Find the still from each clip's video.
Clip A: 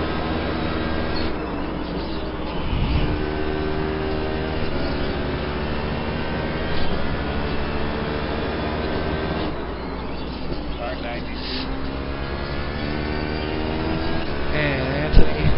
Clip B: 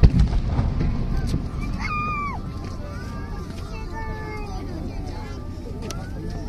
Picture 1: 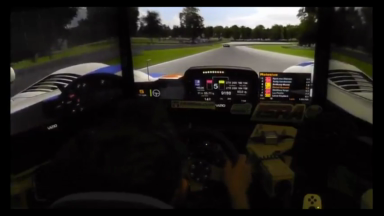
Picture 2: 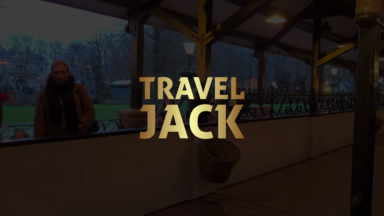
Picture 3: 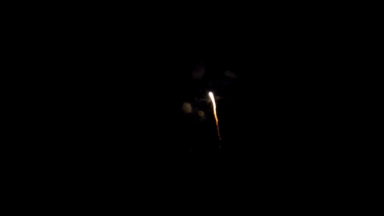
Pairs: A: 1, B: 3